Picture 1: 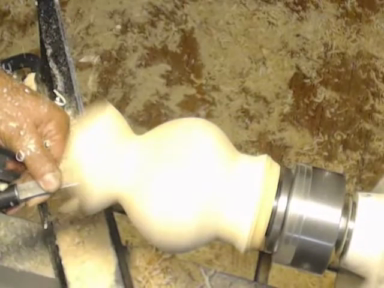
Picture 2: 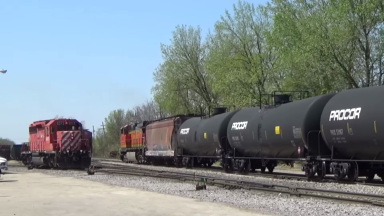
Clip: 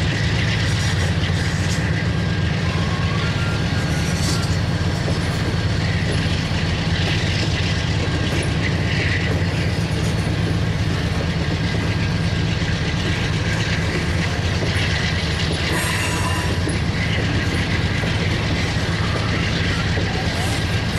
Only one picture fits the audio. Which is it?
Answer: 2